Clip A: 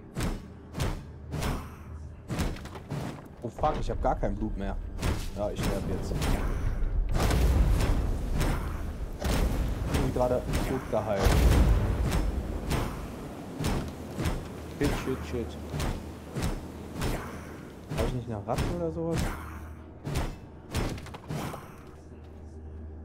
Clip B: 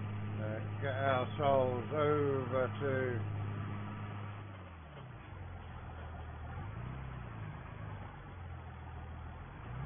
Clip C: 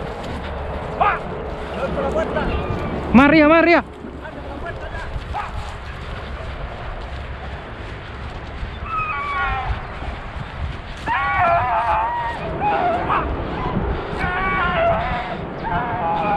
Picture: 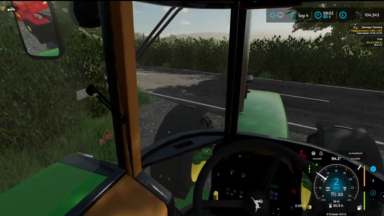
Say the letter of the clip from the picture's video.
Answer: B